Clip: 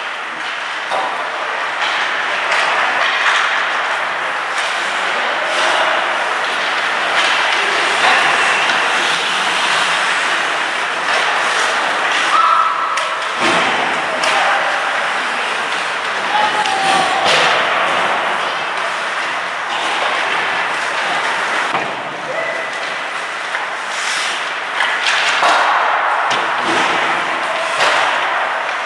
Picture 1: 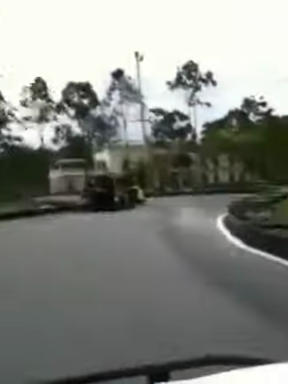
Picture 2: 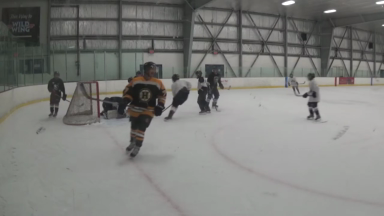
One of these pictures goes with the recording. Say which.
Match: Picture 2